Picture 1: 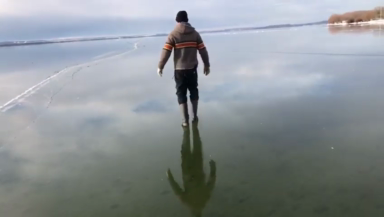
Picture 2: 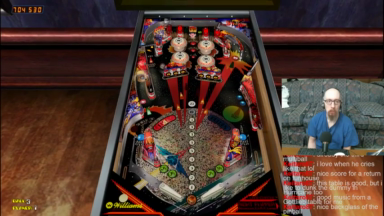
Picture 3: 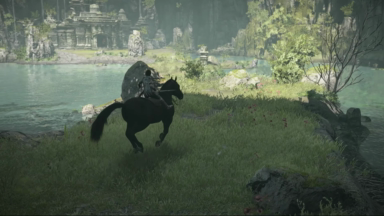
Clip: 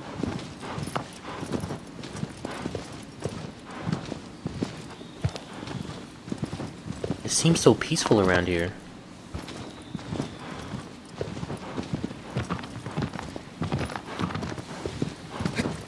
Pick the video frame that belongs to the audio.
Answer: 3